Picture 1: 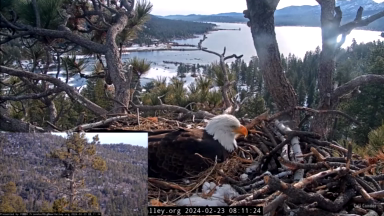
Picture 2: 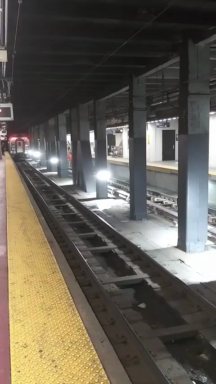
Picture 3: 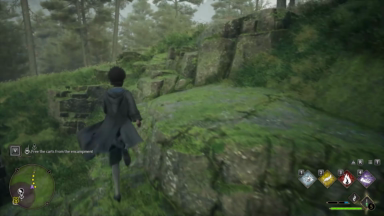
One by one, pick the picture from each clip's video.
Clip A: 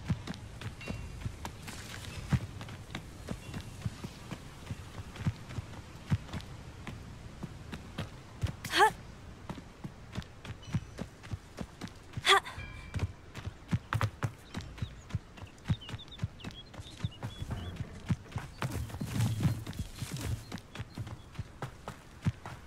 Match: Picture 3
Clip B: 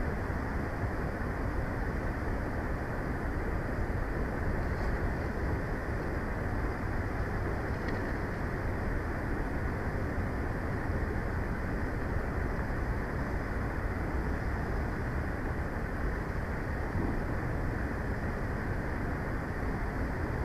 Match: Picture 1